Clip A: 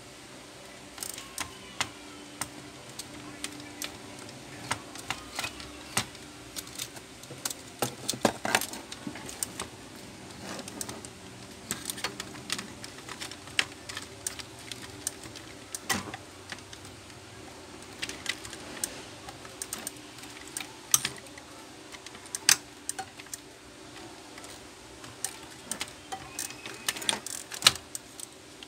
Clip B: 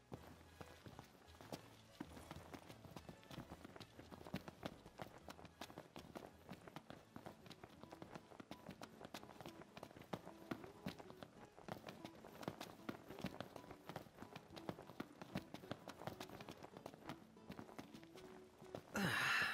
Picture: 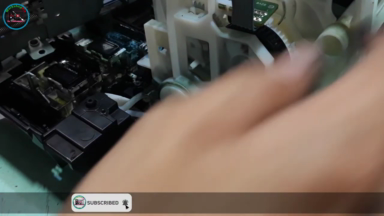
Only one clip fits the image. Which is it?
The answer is A